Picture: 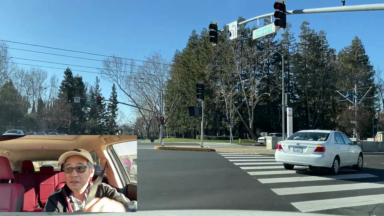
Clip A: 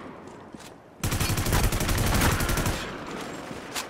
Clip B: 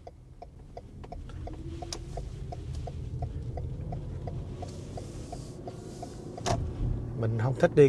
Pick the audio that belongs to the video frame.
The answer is B